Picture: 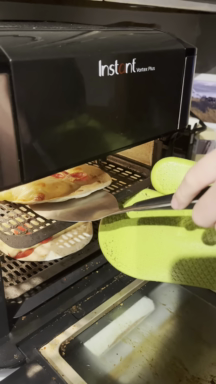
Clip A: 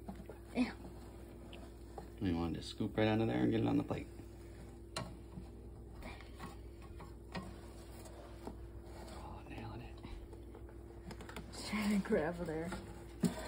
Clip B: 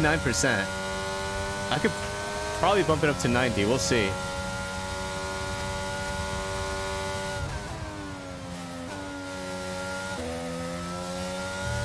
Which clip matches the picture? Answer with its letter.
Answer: A